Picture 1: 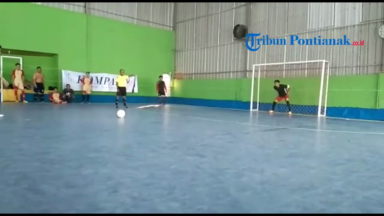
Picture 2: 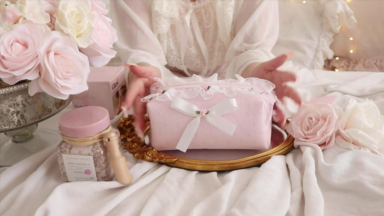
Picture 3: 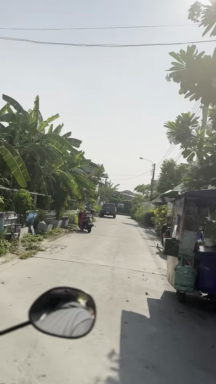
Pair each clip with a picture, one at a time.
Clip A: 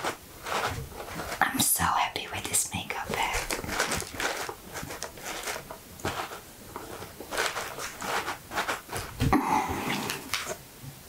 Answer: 2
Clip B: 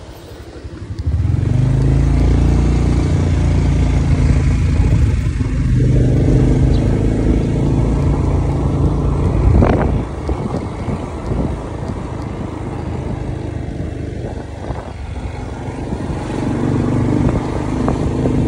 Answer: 3